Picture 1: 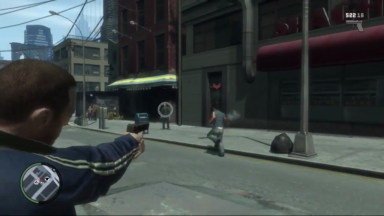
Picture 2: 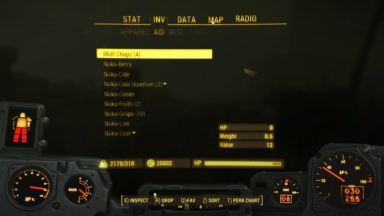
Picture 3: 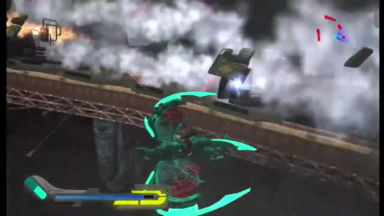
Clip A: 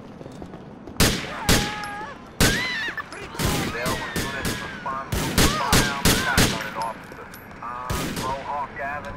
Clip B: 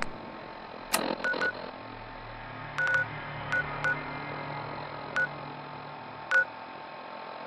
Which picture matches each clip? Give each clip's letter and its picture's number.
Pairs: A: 1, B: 2